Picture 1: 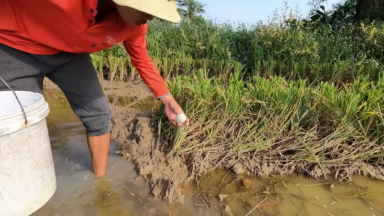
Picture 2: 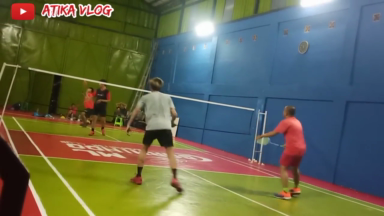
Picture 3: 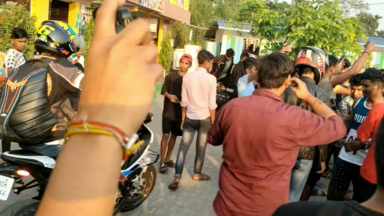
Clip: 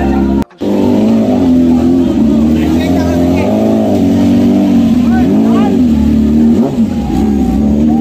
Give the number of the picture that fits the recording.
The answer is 3